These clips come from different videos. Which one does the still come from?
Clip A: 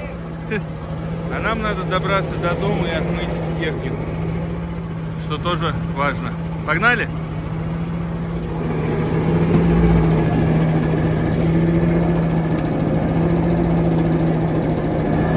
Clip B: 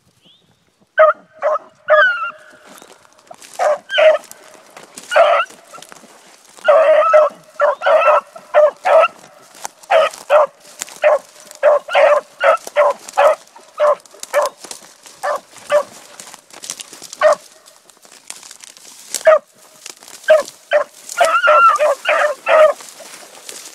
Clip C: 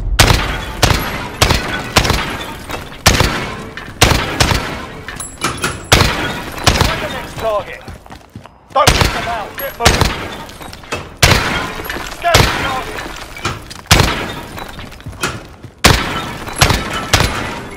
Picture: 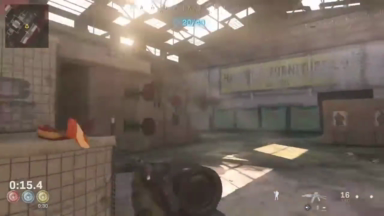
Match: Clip C